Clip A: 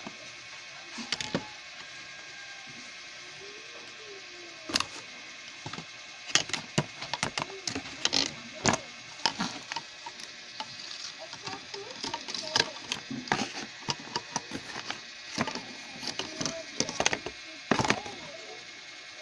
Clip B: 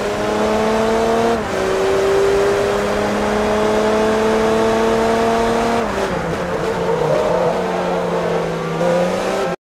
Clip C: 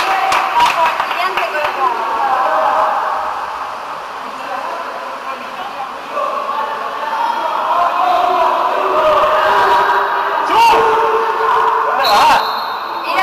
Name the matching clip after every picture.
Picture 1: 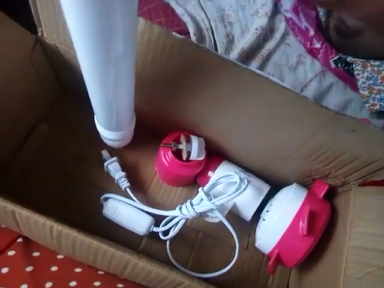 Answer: A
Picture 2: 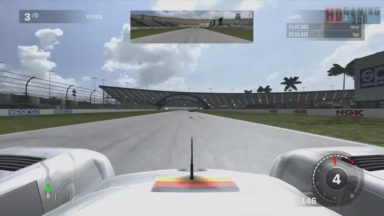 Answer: B